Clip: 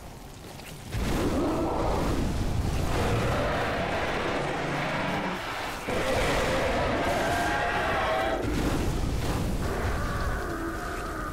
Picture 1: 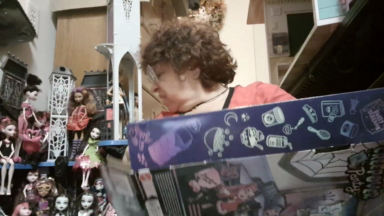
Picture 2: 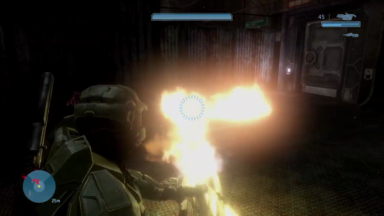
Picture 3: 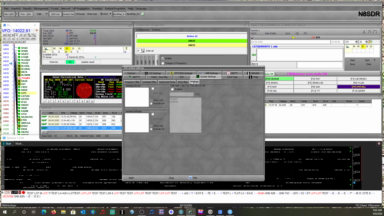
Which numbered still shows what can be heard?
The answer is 2